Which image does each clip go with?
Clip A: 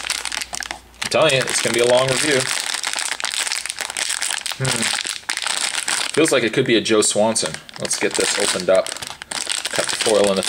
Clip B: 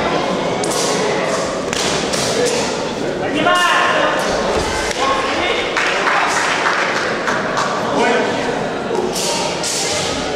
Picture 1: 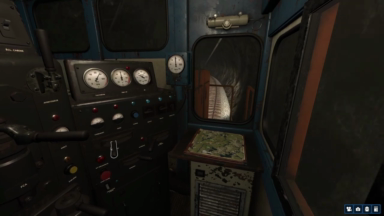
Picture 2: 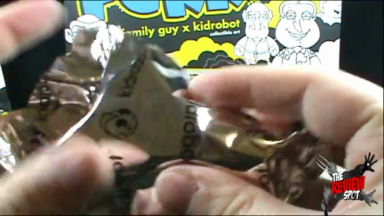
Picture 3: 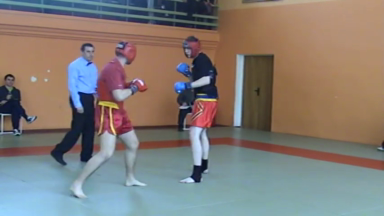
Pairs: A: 2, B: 3